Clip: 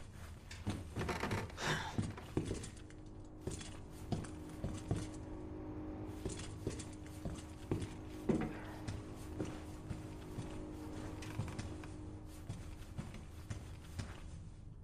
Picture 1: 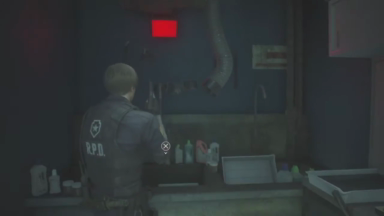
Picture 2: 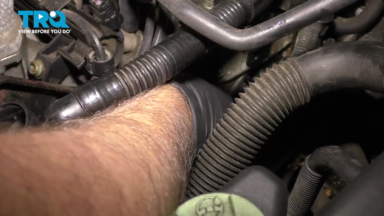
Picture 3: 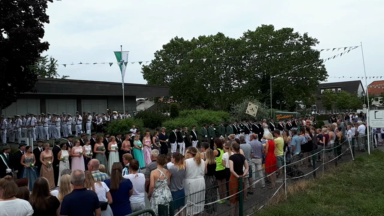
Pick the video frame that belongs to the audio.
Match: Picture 1